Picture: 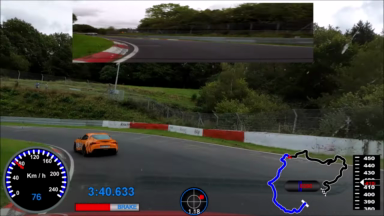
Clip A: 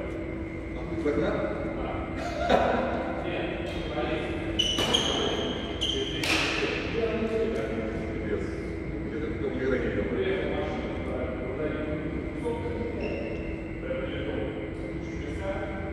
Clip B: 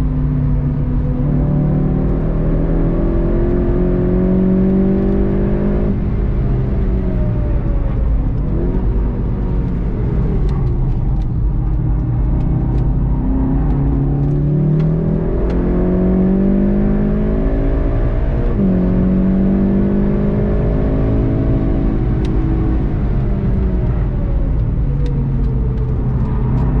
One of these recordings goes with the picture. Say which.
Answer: B